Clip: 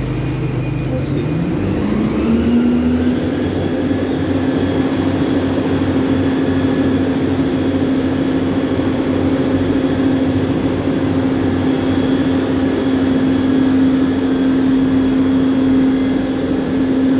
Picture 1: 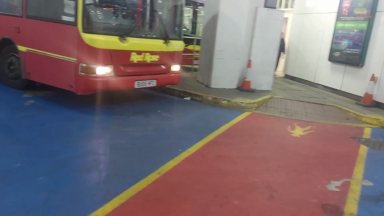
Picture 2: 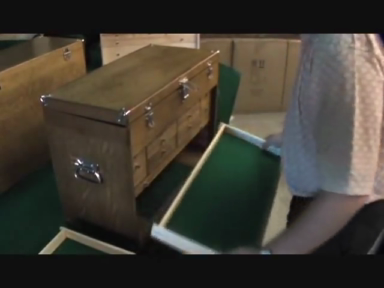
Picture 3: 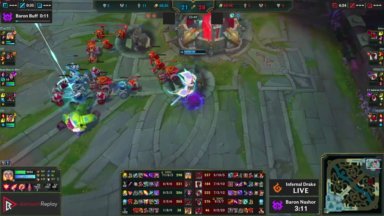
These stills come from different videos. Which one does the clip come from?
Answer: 1